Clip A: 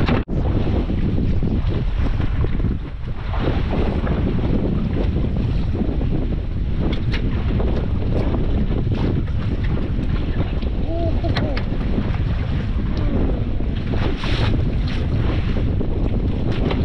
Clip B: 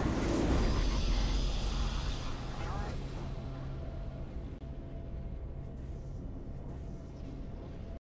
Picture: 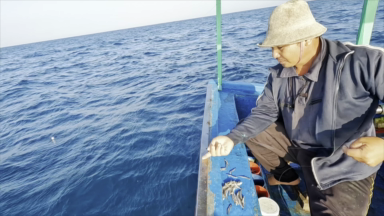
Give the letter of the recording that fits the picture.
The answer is A